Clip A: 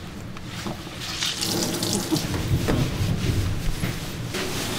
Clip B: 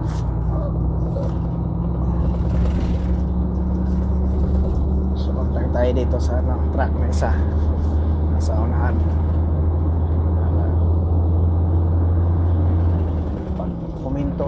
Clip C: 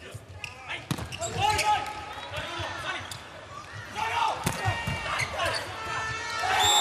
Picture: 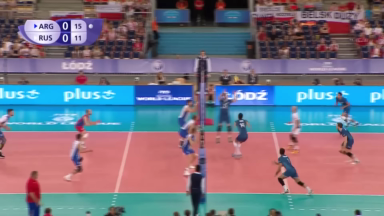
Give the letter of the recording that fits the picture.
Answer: C